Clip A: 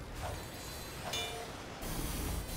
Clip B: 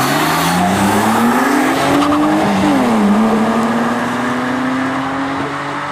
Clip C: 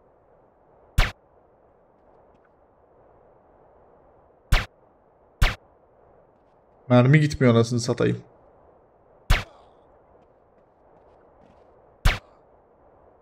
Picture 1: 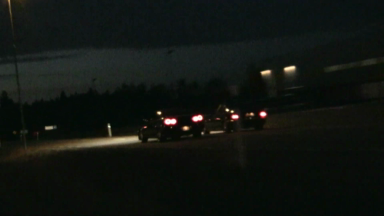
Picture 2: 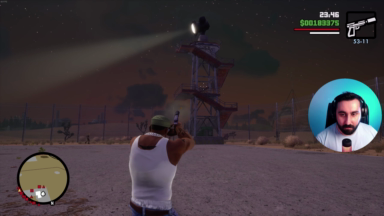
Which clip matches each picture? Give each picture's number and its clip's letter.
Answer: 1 B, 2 C